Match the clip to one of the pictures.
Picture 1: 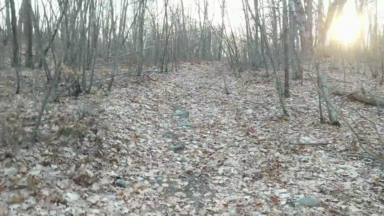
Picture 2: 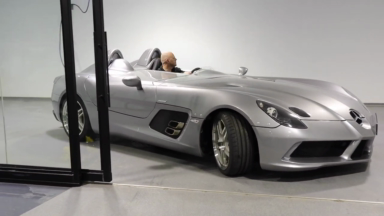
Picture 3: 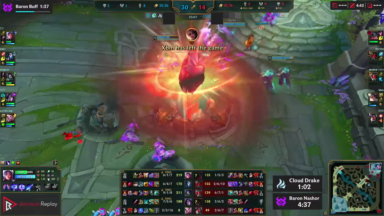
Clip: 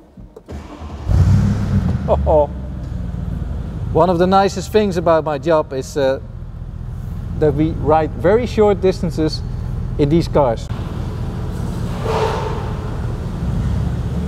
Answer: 2